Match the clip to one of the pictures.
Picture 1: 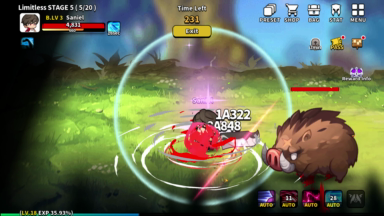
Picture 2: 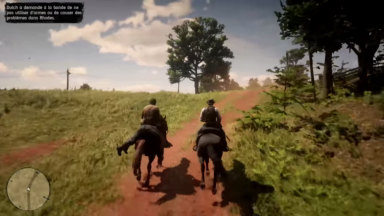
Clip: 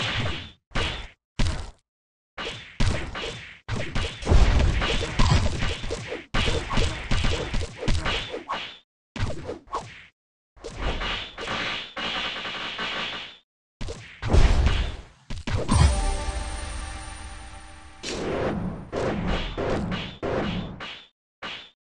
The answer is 1